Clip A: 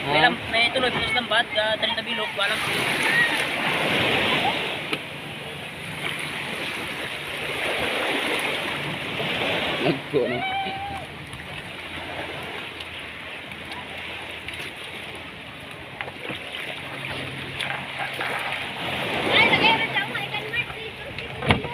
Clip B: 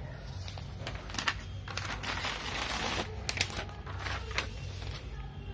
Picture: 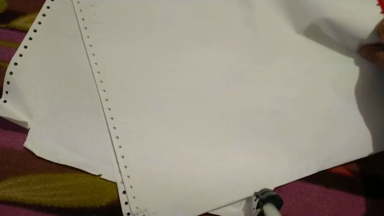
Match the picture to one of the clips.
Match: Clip B